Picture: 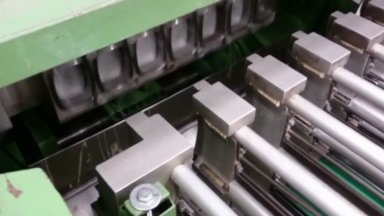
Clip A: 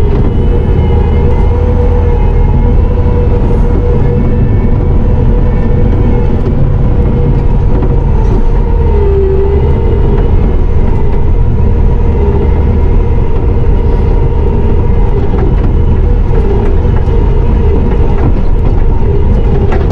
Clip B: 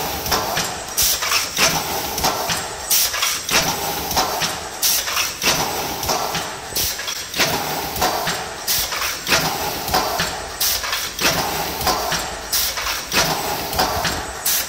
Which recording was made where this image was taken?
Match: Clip B